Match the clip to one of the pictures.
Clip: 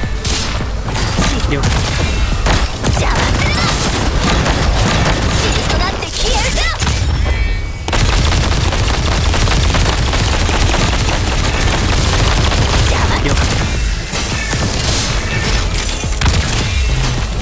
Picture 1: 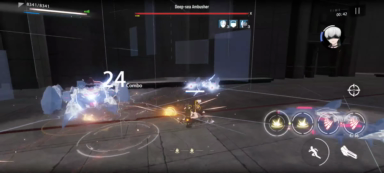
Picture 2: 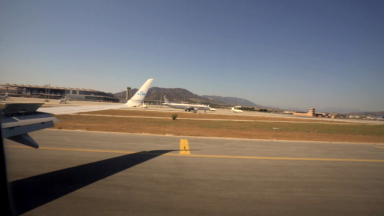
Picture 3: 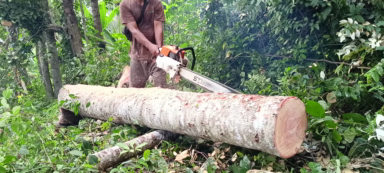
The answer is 1